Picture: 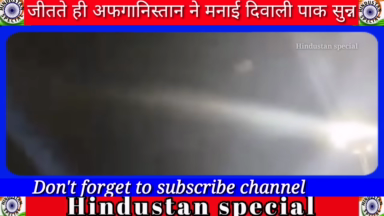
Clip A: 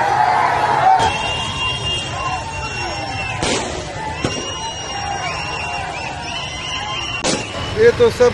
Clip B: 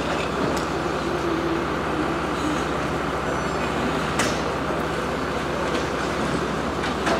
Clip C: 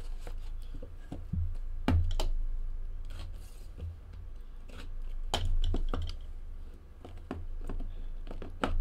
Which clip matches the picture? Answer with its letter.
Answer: A